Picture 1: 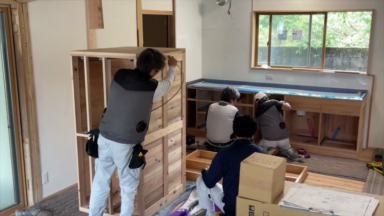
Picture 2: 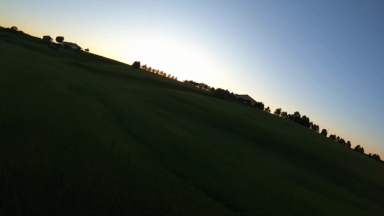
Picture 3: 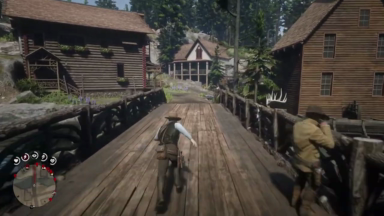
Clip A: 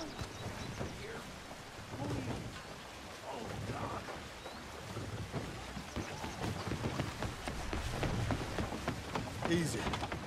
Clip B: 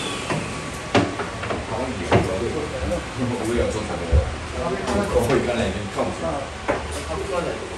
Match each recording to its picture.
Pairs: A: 3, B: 1